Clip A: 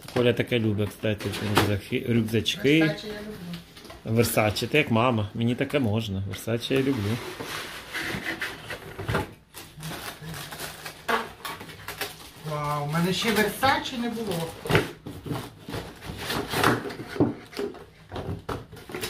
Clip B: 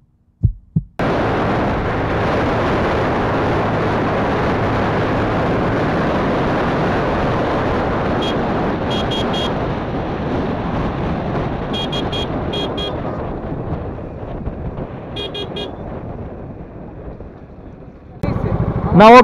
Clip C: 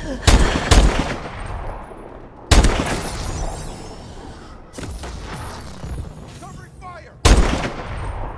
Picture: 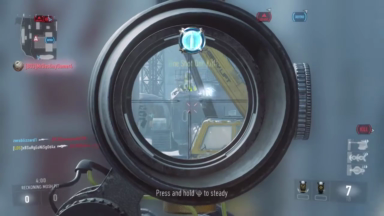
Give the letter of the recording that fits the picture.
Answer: C